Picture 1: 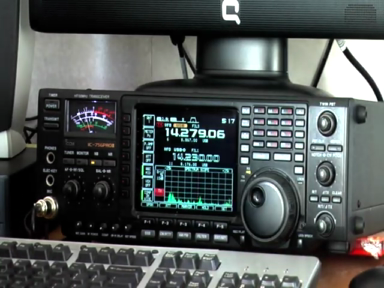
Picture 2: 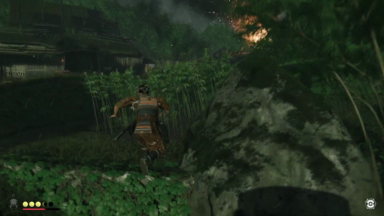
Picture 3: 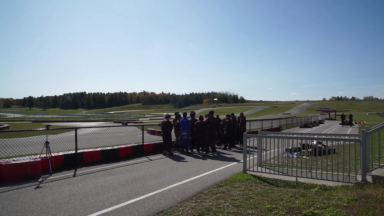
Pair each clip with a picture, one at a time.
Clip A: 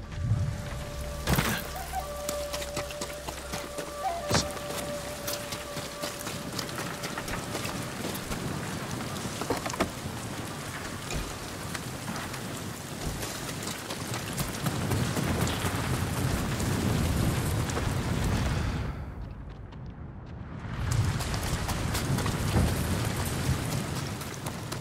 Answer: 2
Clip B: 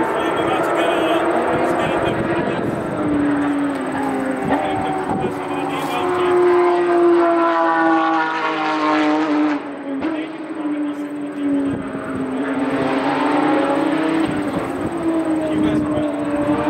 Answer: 3